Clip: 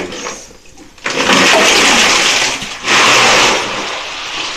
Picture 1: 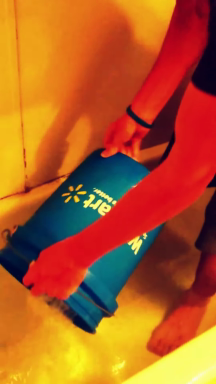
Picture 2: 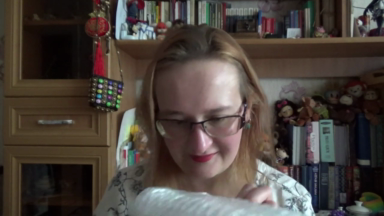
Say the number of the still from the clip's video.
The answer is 1